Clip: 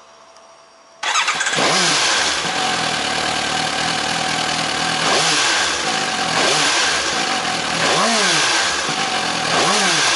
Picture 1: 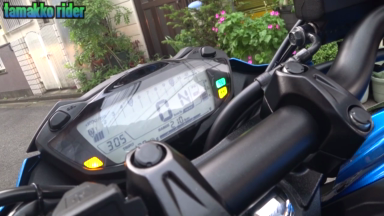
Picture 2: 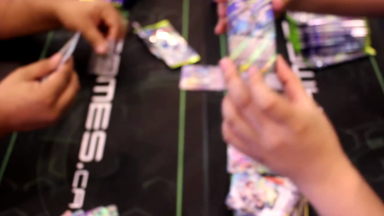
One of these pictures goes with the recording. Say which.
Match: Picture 1